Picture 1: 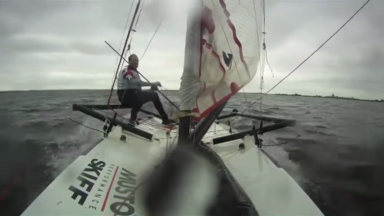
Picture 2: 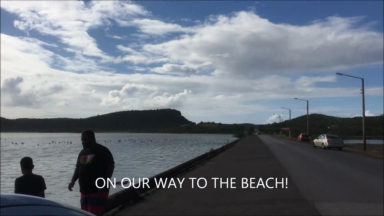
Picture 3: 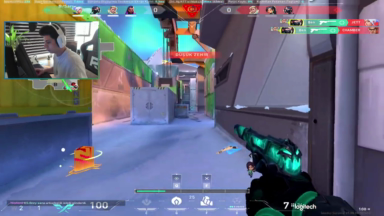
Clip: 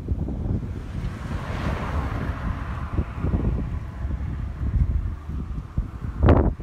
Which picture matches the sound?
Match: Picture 2